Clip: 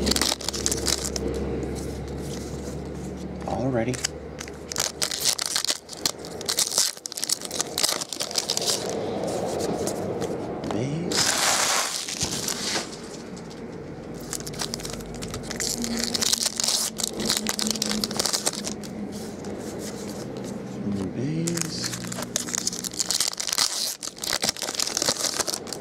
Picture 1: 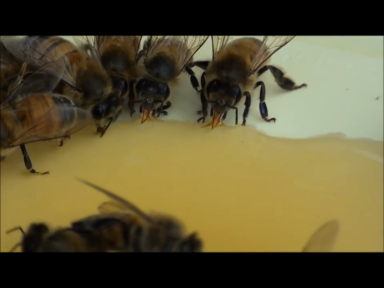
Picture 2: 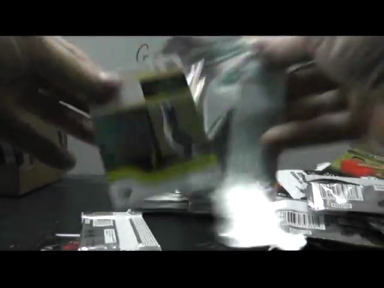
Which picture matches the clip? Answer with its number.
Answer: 2